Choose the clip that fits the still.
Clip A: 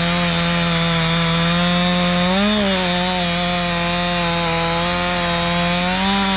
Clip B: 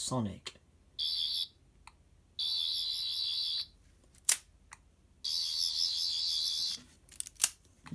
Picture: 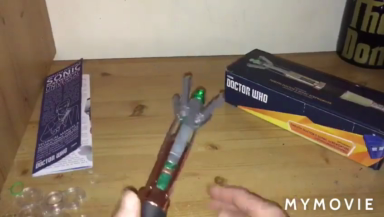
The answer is B